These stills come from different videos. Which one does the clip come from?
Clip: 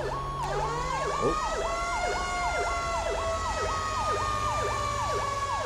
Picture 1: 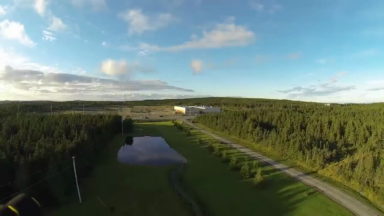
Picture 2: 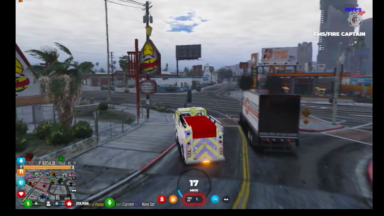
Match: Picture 2